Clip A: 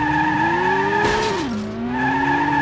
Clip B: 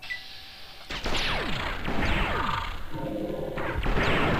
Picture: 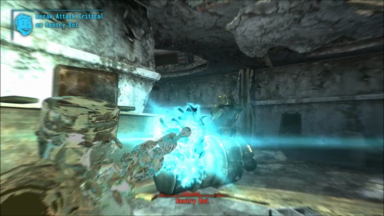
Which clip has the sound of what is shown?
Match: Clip B